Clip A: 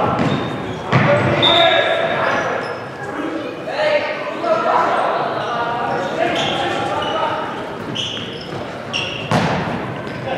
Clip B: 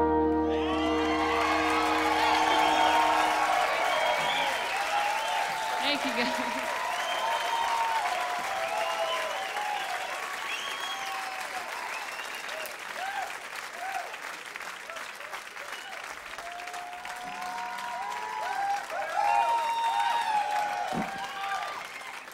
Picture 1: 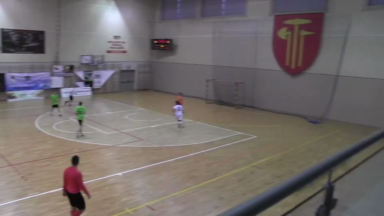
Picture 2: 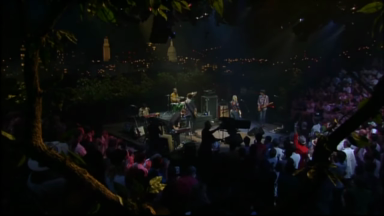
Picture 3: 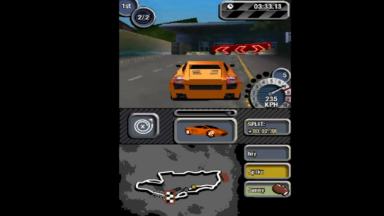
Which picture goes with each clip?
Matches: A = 1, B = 2